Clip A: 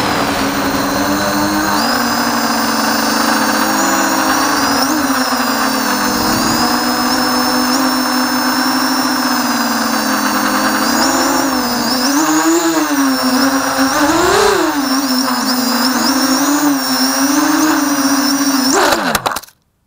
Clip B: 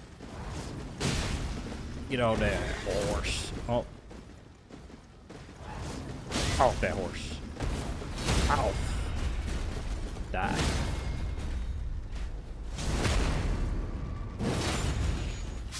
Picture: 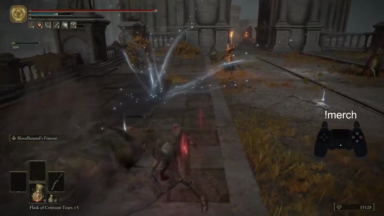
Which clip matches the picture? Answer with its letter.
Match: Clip B